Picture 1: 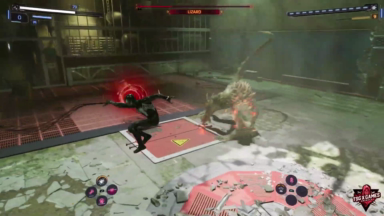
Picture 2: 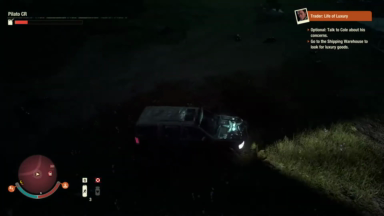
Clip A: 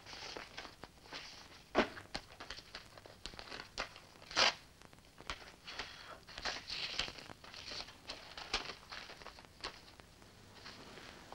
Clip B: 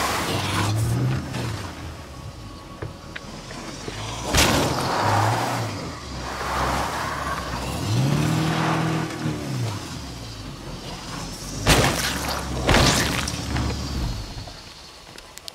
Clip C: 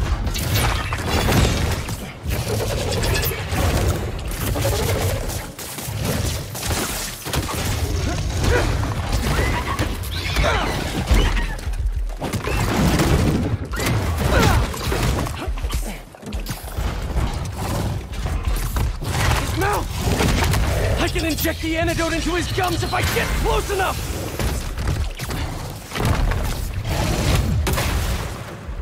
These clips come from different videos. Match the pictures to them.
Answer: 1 C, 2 B